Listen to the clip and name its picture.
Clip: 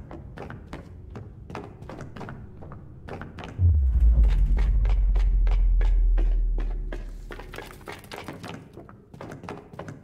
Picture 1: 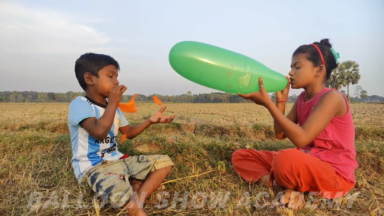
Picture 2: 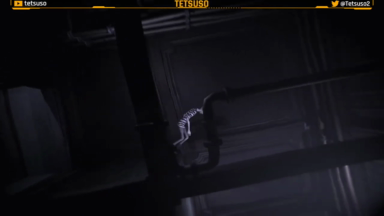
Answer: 2